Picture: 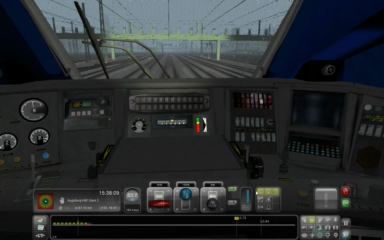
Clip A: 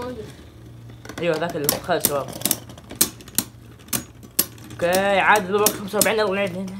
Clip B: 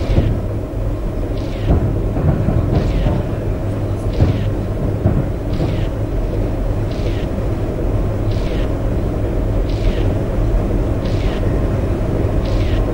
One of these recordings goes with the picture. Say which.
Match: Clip B